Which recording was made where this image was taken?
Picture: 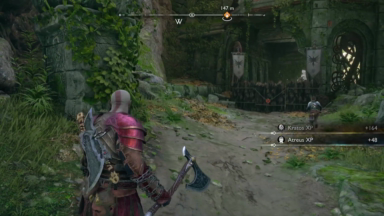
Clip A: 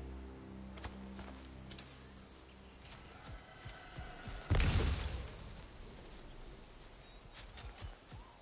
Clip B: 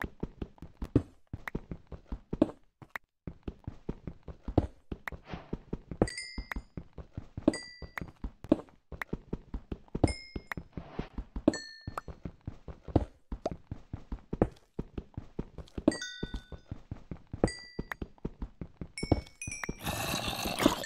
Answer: A